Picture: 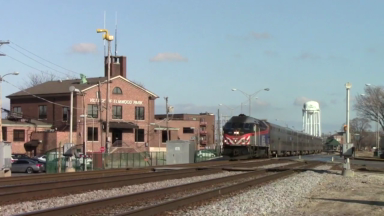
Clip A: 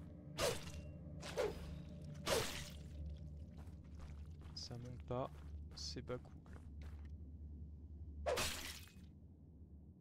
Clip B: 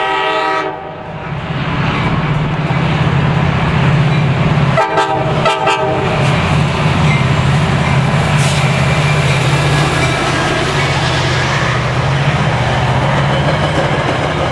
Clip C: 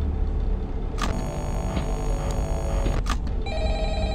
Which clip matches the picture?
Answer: B